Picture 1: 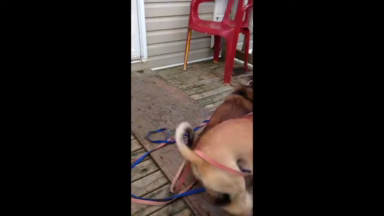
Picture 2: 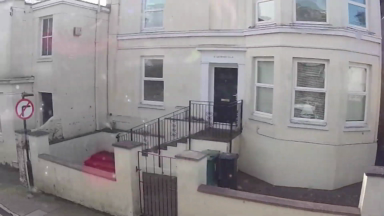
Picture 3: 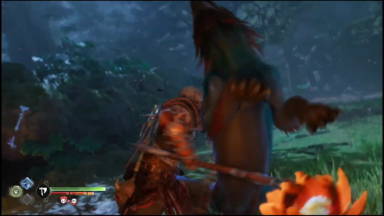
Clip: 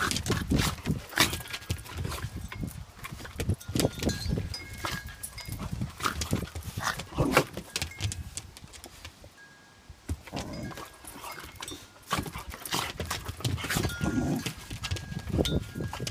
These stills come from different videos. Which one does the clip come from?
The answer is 1